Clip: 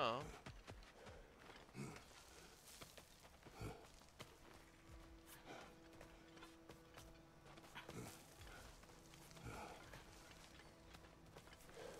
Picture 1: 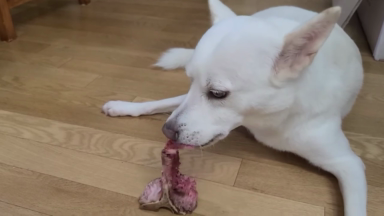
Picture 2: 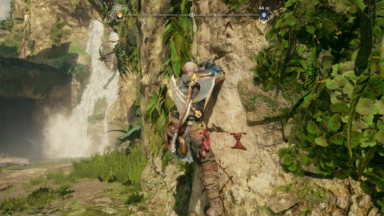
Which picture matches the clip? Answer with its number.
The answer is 2